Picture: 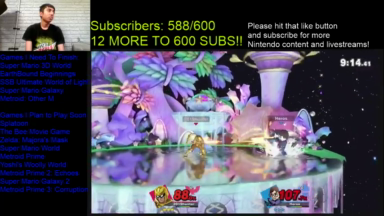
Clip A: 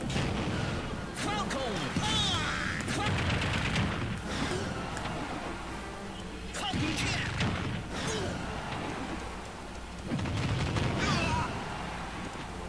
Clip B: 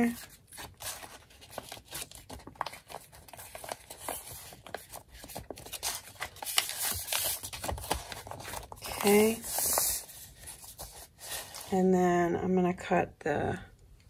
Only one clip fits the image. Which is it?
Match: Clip A